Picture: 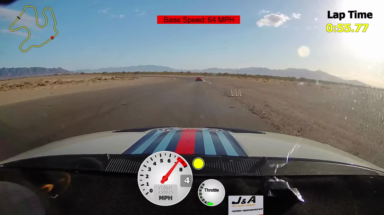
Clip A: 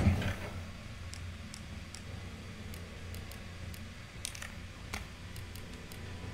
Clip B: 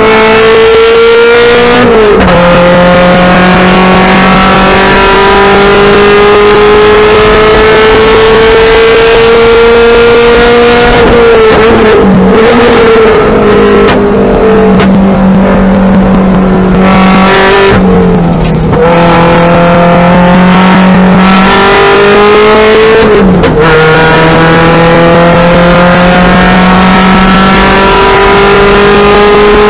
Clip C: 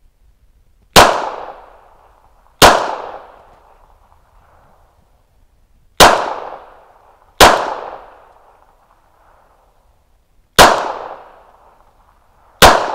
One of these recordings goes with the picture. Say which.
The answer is B